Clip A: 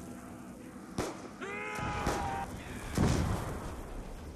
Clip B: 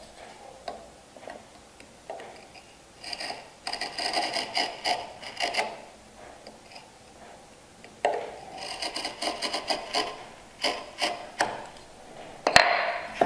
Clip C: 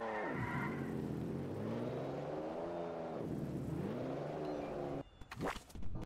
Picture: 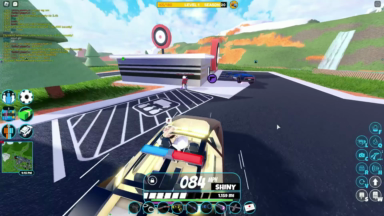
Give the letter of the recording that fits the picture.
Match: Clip C